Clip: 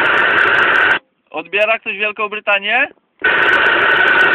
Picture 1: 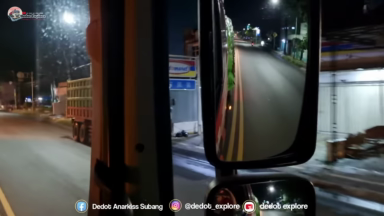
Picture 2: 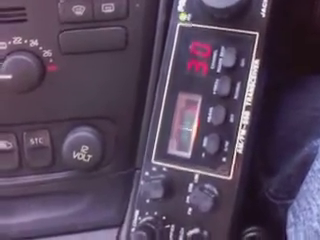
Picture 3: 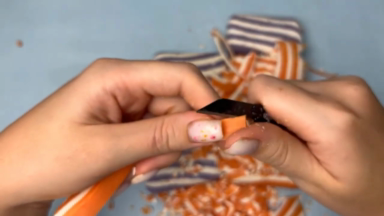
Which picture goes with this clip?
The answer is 2